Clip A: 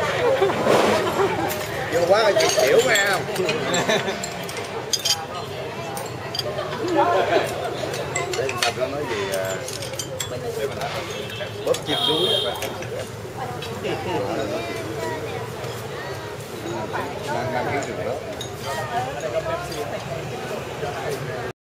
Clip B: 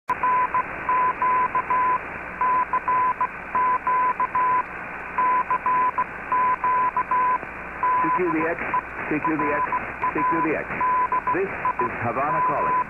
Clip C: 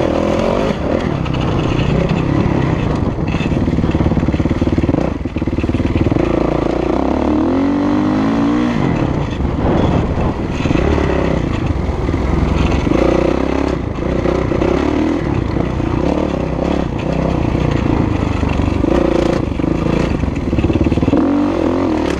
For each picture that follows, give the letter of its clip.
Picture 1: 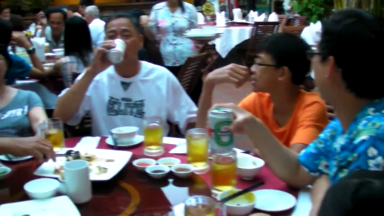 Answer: A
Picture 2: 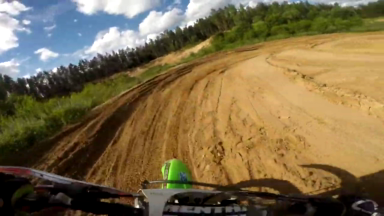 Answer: C